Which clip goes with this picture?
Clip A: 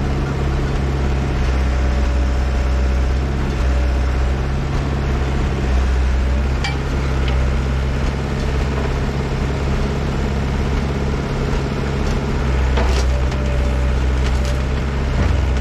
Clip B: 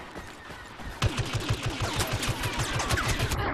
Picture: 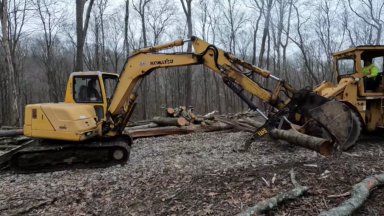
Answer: A